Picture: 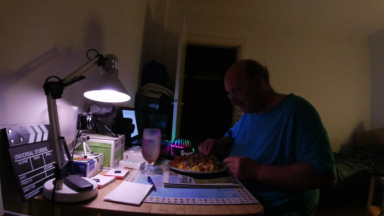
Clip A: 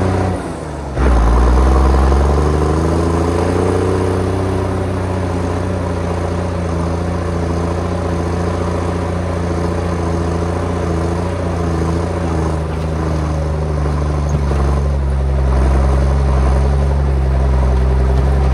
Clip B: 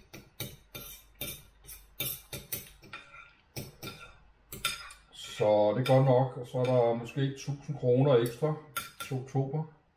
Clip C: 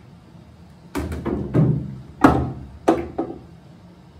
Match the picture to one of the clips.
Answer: B